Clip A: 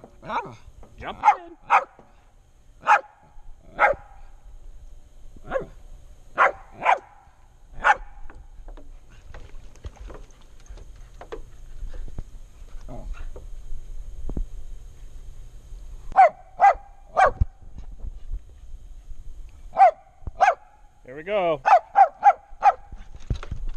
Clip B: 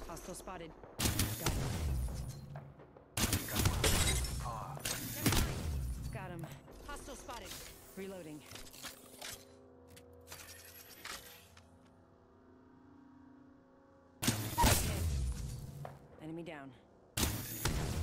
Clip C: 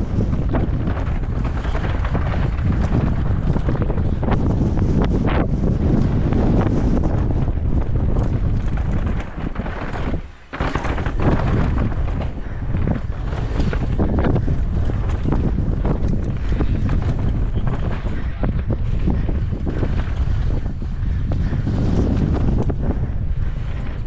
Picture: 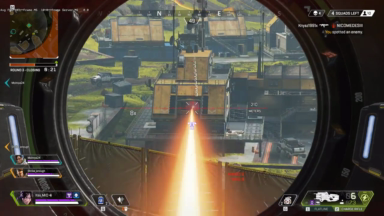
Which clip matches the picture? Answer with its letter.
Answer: B